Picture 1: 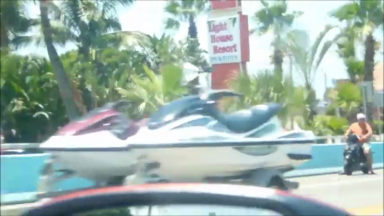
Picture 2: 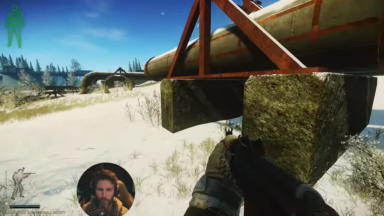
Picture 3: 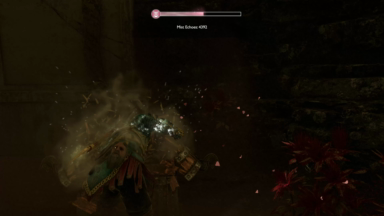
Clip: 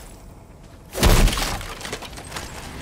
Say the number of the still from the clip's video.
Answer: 3